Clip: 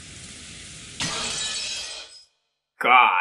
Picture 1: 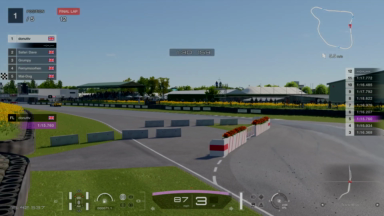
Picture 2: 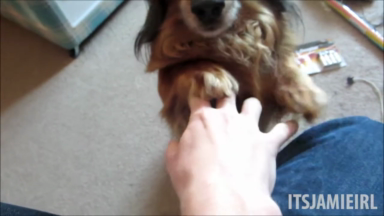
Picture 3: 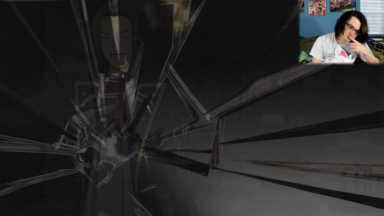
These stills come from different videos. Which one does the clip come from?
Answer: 3